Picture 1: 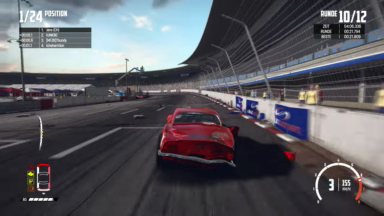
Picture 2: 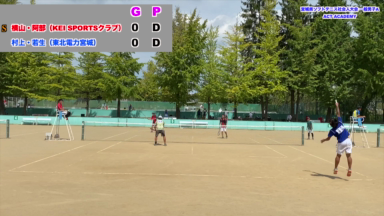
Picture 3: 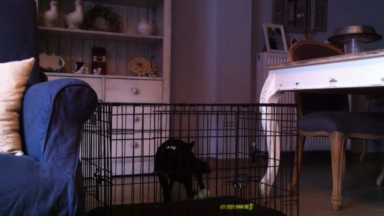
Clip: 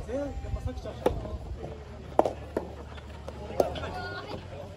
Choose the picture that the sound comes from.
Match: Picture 2